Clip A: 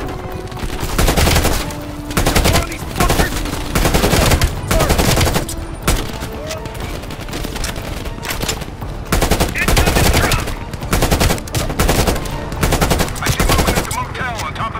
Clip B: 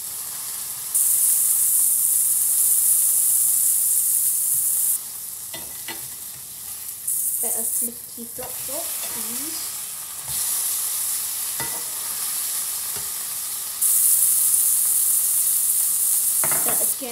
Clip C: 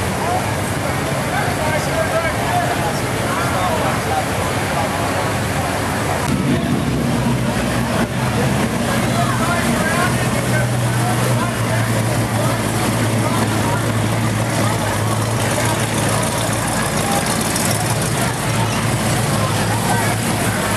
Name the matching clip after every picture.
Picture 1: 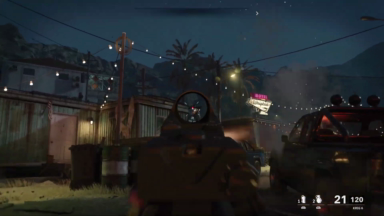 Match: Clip A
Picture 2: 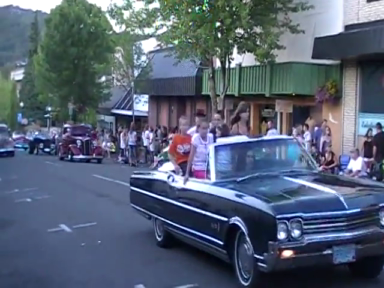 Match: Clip C